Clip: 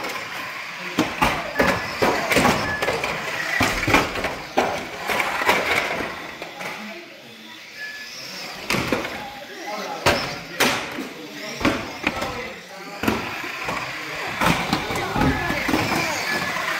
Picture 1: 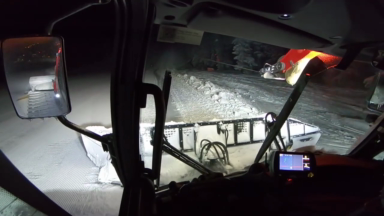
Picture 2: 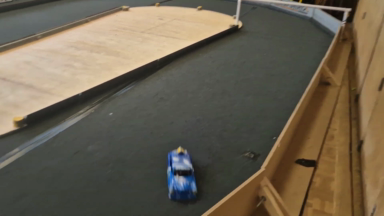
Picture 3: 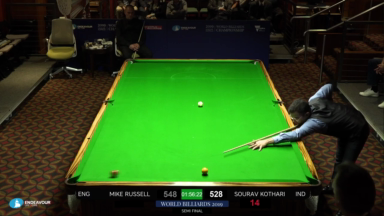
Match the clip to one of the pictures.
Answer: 2